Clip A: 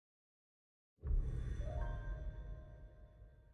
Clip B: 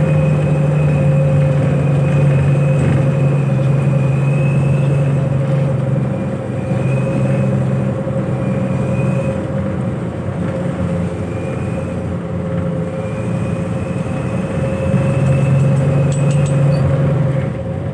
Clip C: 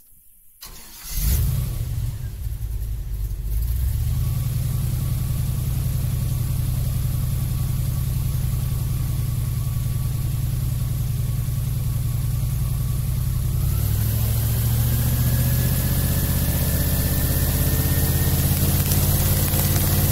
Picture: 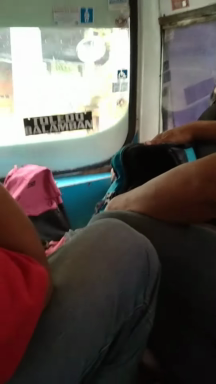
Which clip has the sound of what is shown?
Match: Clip B